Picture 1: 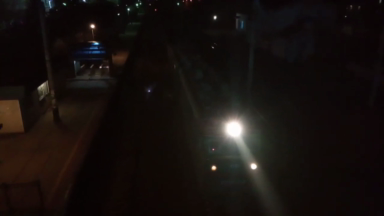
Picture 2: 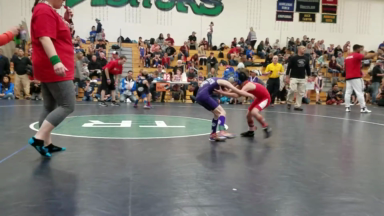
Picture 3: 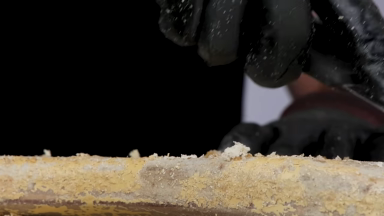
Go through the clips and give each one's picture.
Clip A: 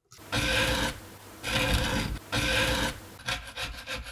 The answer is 3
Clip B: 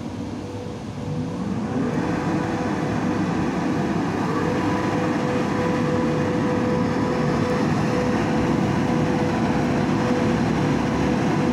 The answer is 1